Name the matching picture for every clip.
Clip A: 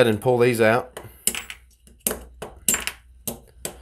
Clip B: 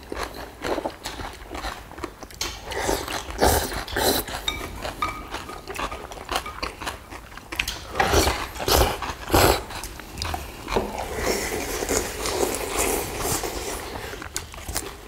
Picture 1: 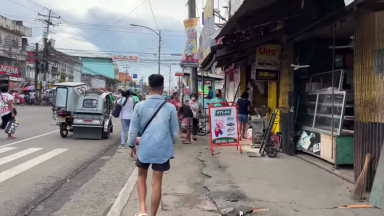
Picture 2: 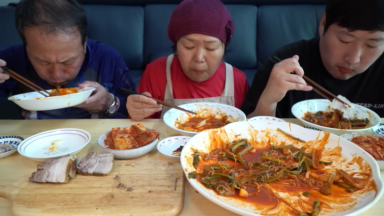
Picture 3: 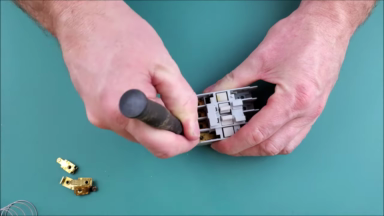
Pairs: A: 3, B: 2